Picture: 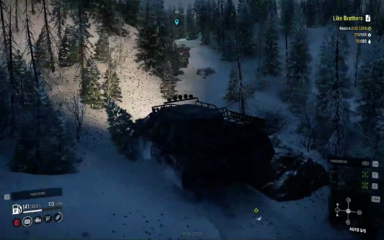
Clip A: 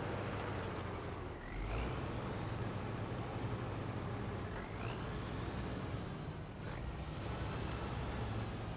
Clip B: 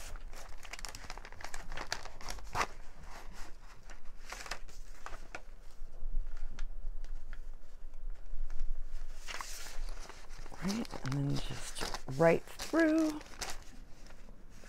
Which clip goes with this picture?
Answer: A